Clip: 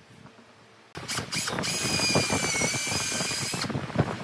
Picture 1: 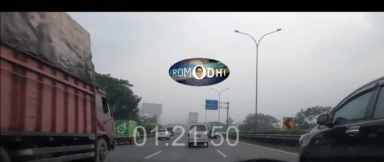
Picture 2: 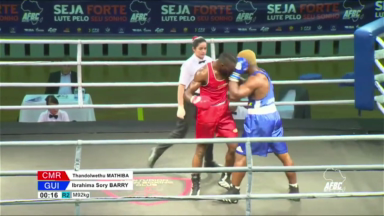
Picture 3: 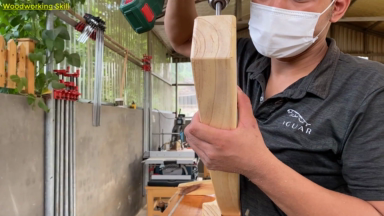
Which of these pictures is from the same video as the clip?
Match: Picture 3